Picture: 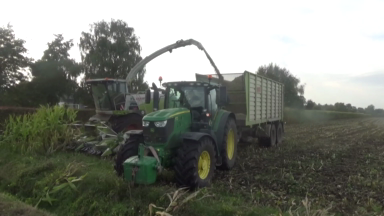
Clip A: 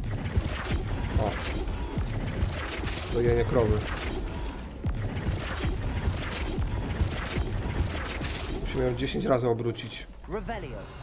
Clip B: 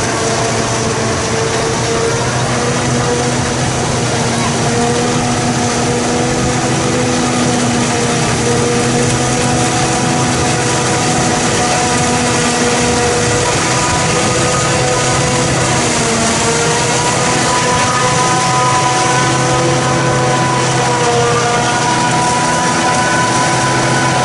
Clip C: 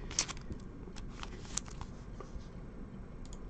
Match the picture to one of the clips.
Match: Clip B